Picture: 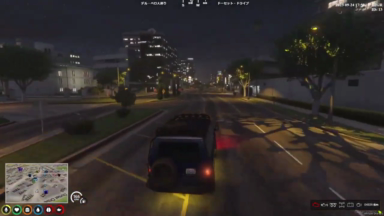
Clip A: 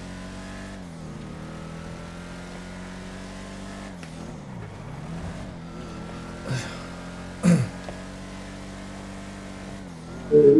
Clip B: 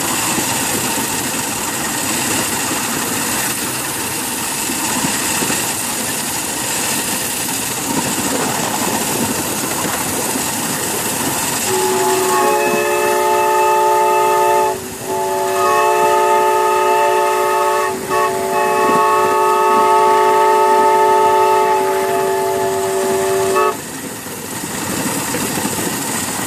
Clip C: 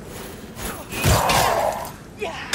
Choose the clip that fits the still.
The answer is A